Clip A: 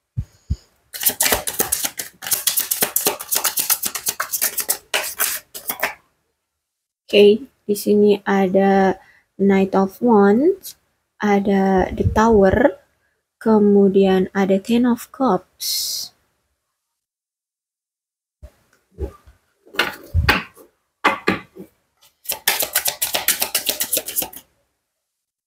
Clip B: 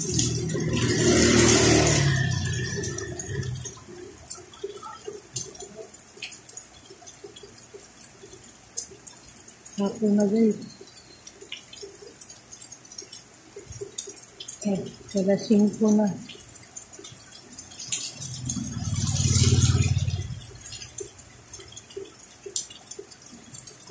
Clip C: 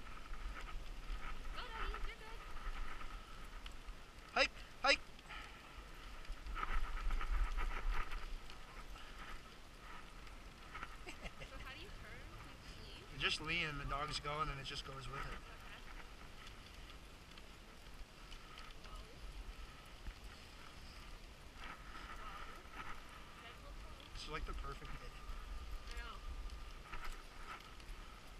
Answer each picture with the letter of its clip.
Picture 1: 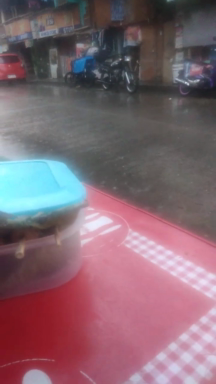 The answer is B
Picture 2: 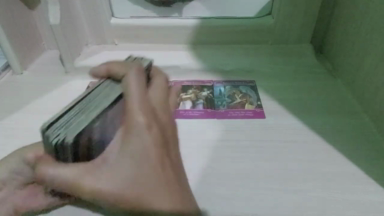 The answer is A